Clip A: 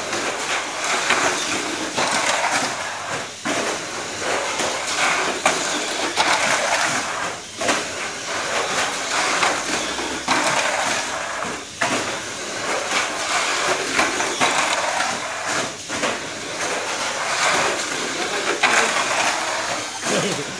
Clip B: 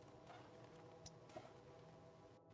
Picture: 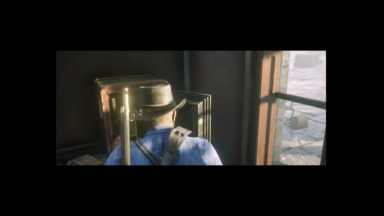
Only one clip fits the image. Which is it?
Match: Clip B